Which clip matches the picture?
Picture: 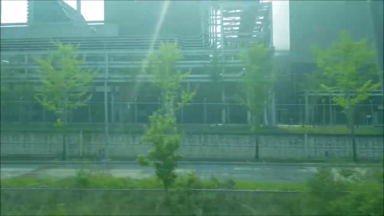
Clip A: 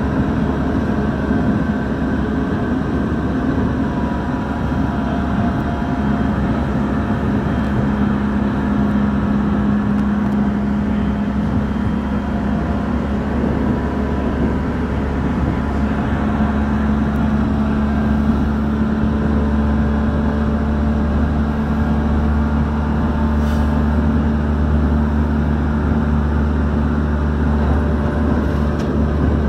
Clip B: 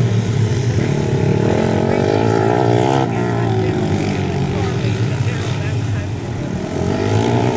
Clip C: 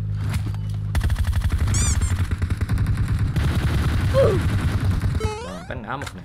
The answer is A